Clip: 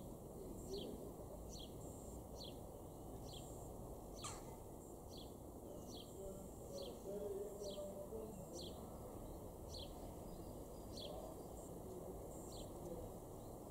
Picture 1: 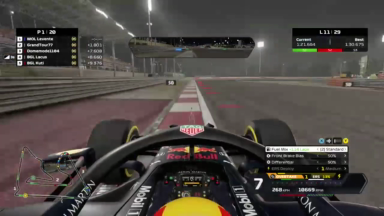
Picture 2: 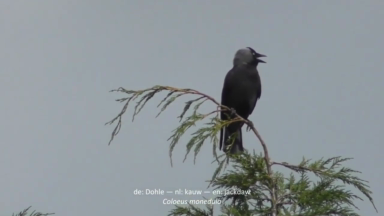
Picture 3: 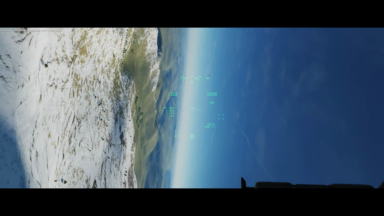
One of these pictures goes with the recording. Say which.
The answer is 2